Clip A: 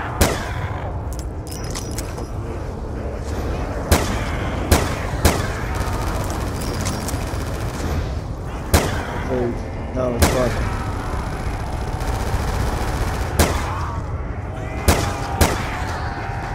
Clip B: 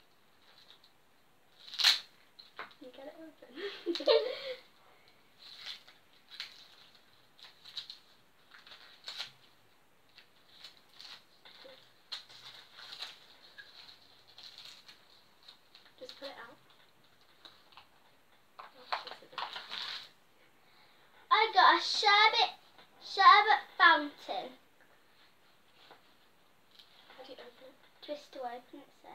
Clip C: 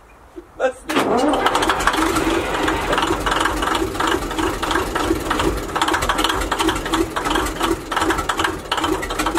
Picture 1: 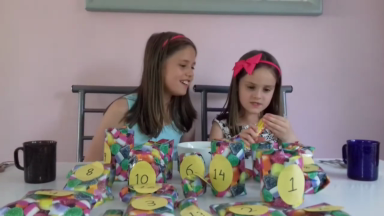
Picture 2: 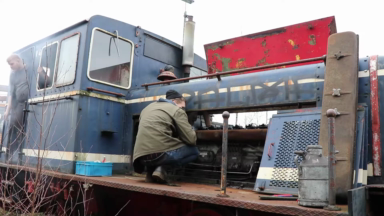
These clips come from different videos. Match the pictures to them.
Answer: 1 B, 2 C